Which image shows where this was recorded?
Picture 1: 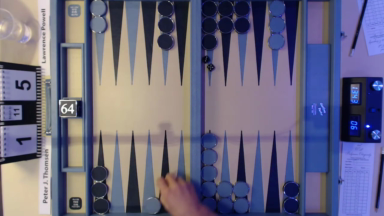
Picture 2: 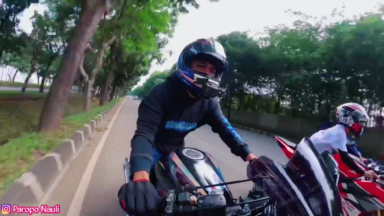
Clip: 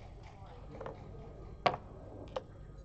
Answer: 1